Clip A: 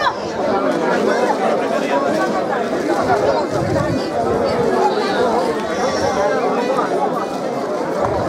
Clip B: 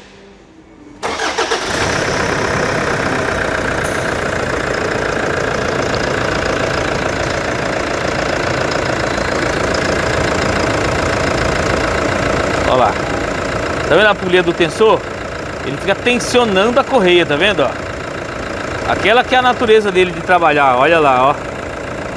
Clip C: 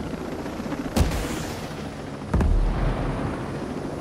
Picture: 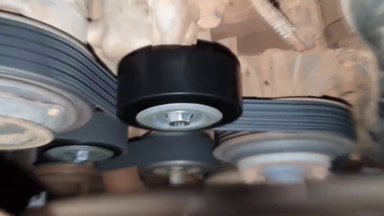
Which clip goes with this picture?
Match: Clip B